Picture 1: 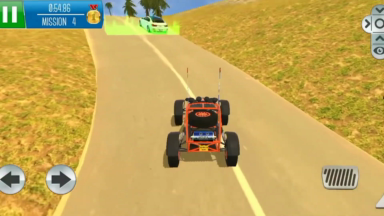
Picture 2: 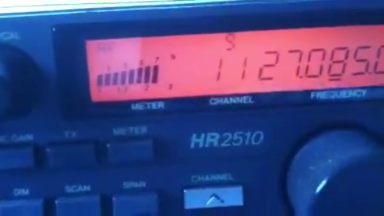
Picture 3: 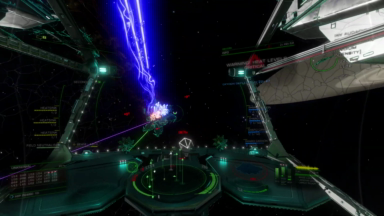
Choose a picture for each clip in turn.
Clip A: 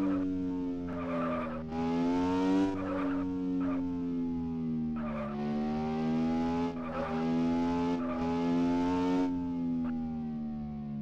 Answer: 1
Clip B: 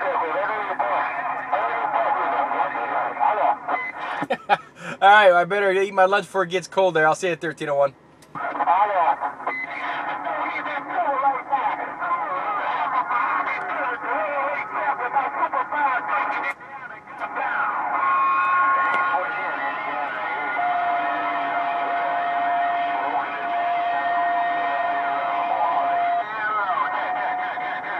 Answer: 2